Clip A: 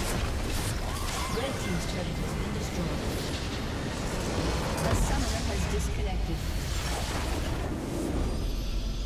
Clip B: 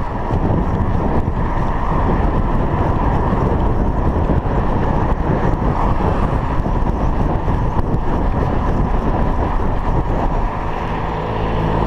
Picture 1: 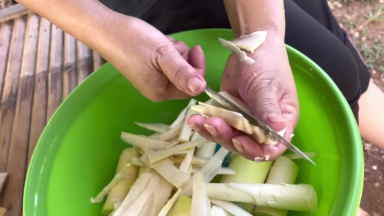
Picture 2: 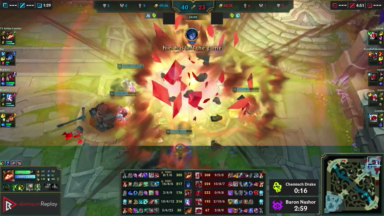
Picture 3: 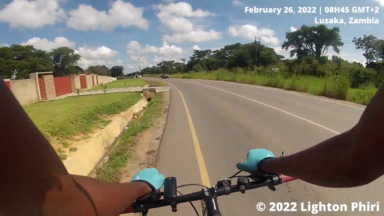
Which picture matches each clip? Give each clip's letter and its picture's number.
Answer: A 2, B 3